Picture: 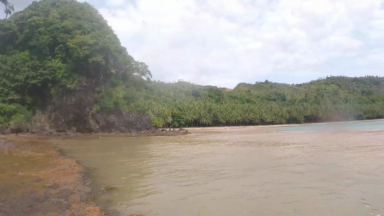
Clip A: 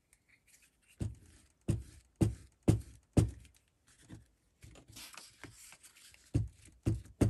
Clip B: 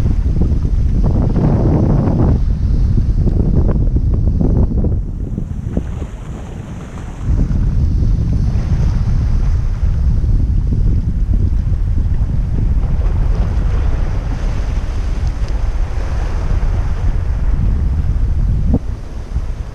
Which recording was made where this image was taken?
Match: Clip B